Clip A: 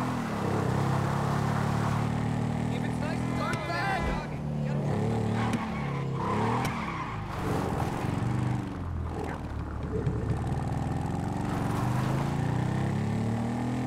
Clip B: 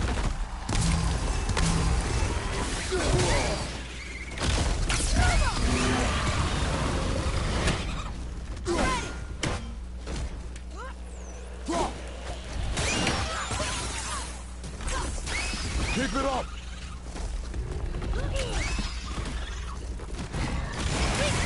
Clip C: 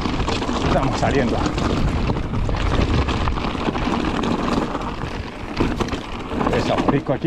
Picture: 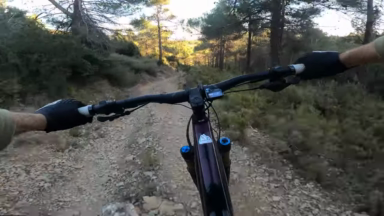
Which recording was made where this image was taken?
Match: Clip C